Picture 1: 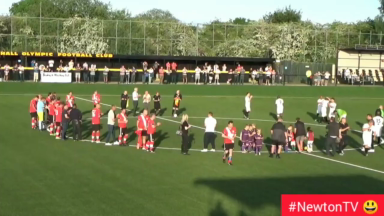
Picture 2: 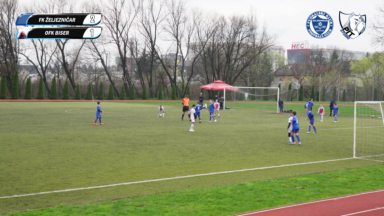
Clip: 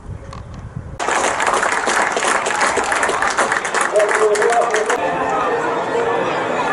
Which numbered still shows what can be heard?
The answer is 1